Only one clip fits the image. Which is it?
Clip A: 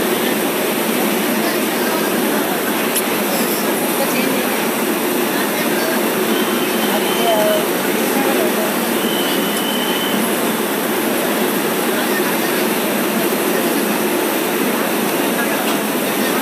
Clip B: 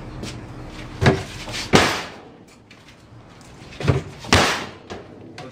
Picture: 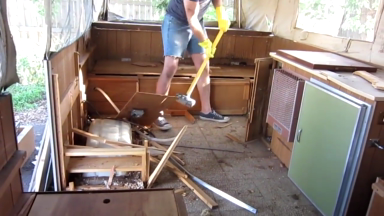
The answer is B